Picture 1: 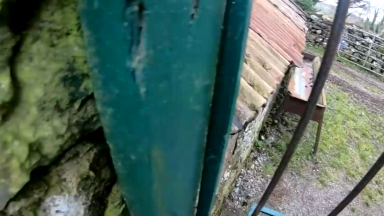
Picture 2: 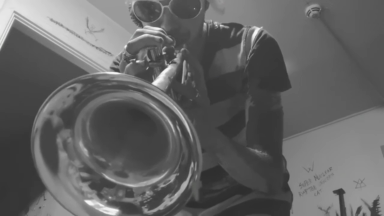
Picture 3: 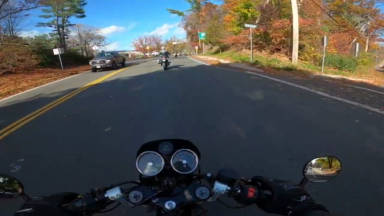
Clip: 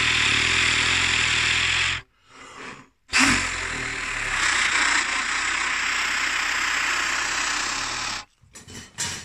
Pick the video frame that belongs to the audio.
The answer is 2